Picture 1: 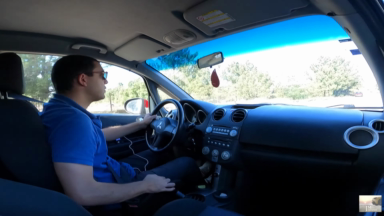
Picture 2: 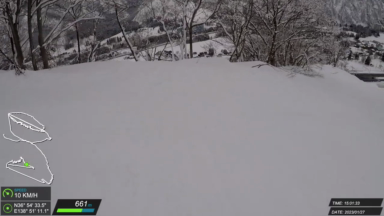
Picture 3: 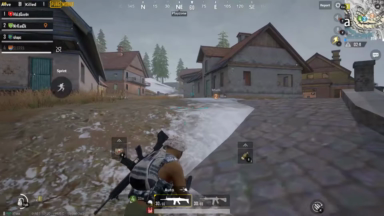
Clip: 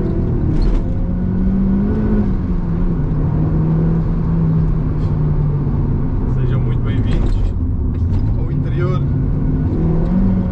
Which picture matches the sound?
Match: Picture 1